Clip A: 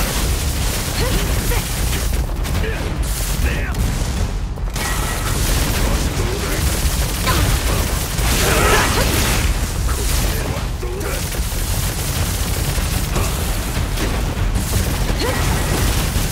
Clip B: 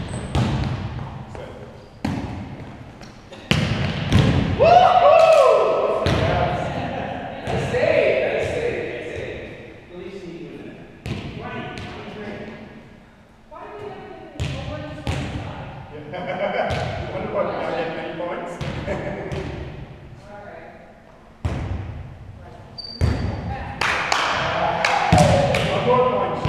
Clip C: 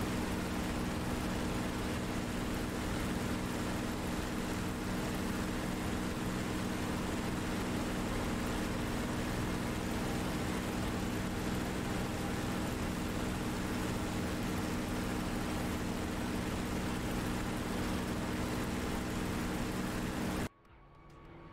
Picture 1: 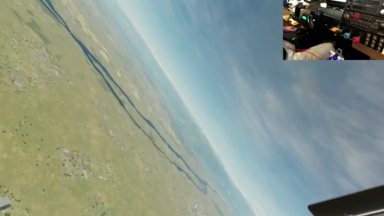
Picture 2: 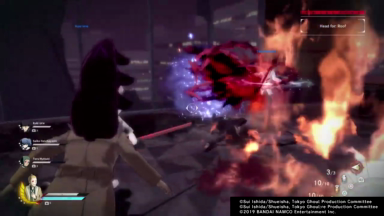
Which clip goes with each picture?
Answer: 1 C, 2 A